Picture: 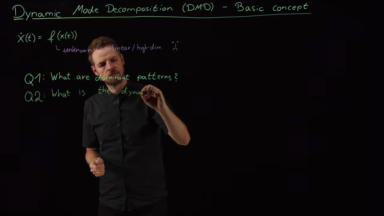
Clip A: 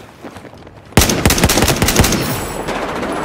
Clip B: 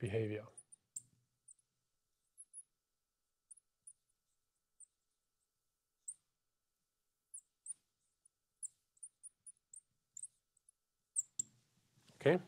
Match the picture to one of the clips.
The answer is B